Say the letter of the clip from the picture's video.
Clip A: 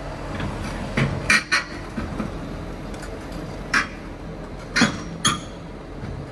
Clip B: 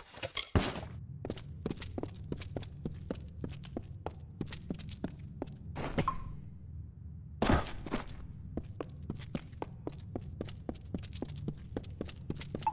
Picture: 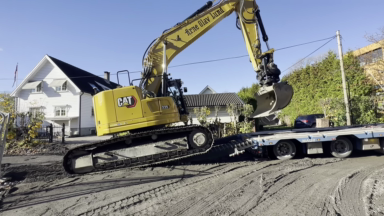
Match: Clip A